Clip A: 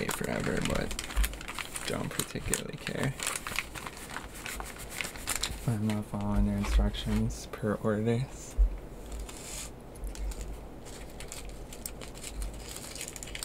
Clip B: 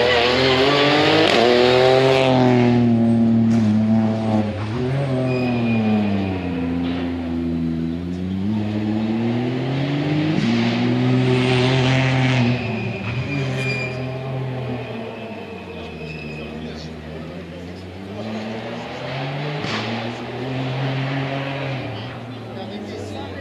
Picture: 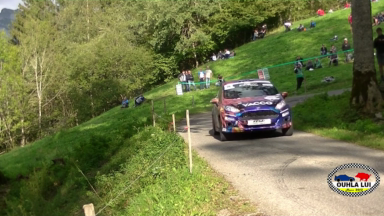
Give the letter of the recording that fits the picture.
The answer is B